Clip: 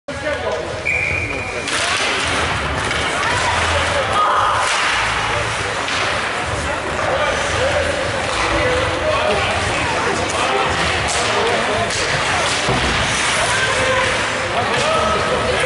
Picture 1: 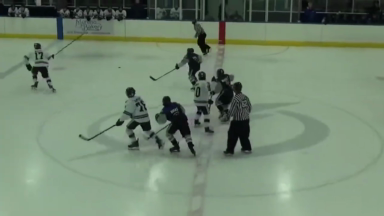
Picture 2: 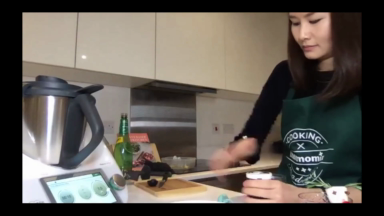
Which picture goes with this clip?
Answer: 1